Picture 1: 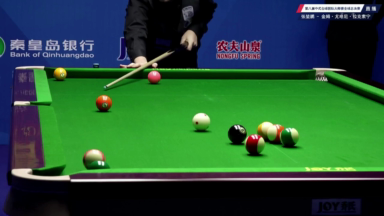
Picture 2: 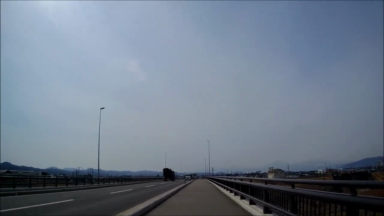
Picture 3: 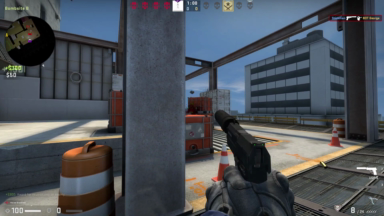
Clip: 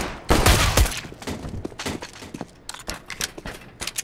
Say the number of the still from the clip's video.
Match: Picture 3